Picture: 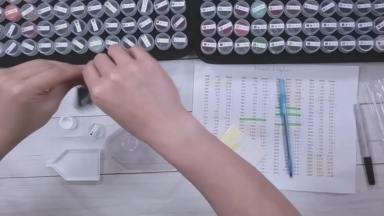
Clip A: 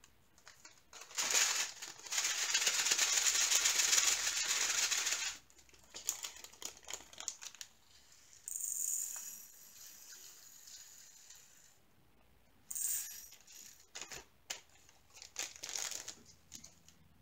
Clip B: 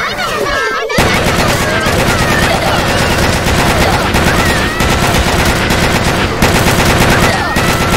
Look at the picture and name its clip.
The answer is A